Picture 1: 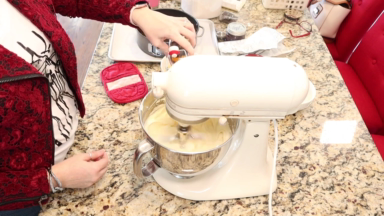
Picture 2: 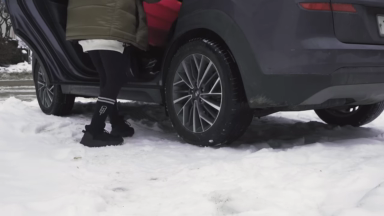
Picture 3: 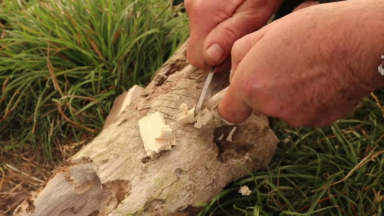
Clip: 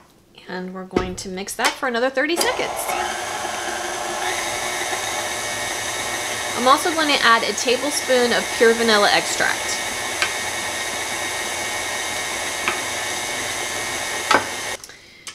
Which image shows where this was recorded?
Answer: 1